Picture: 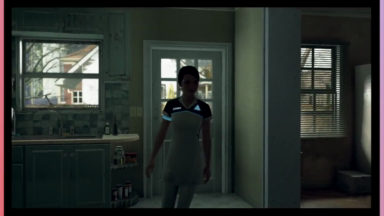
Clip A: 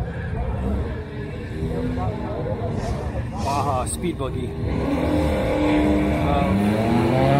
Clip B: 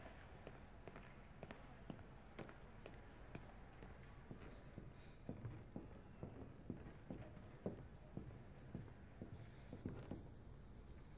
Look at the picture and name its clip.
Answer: B